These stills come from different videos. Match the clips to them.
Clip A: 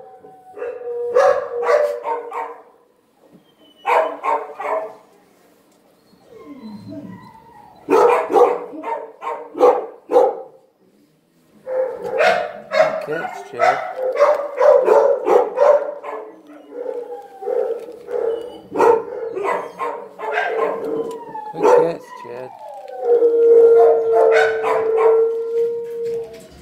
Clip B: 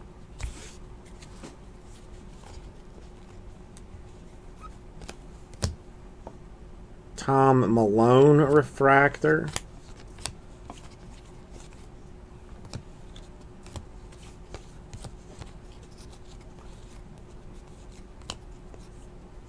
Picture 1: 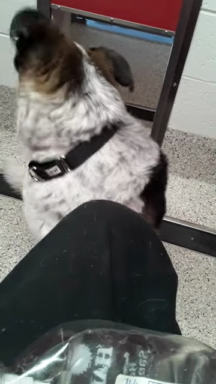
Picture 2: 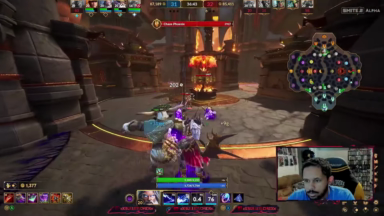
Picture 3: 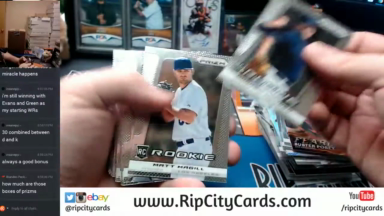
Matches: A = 1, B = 3